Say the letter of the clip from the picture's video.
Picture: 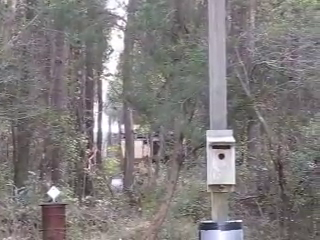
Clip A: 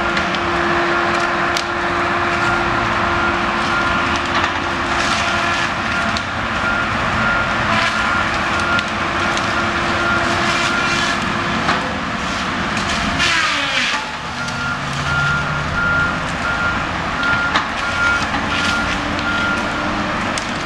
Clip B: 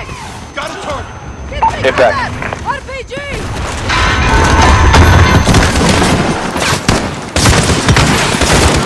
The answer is A